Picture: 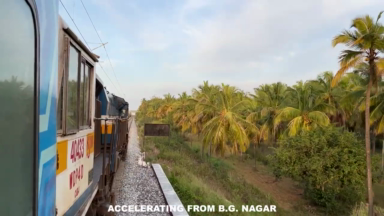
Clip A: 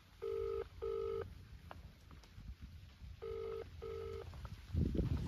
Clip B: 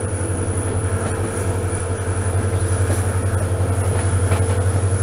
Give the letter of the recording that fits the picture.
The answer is B